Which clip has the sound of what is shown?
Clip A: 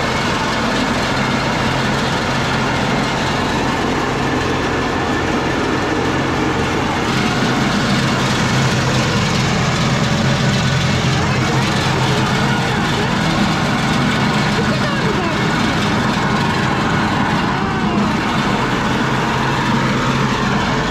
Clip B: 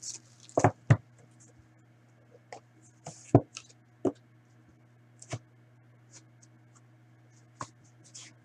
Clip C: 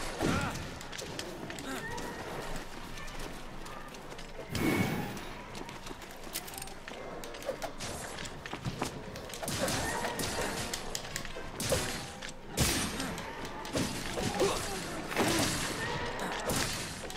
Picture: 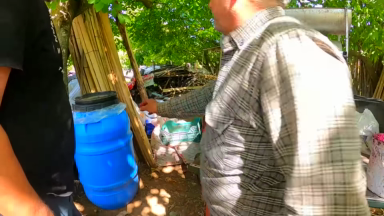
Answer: A